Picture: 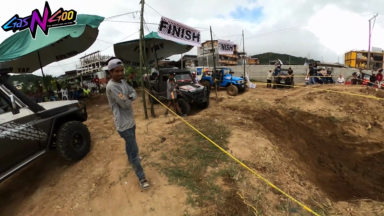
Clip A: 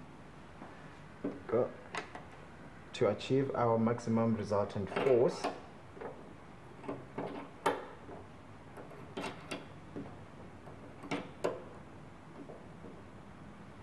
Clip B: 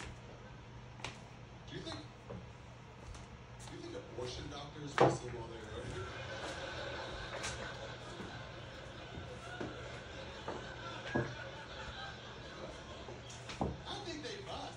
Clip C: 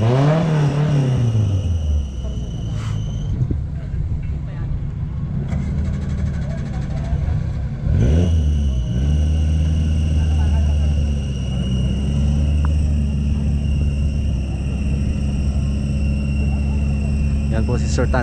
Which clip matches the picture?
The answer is C